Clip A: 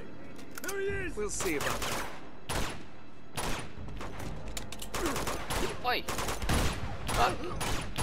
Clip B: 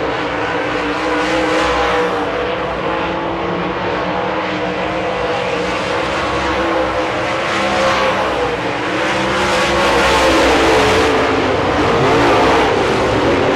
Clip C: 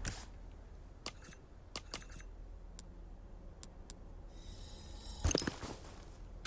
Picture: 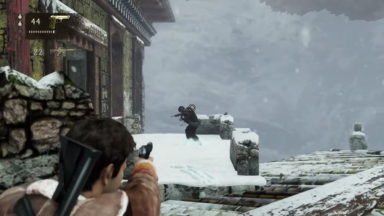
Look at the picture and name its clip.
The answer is A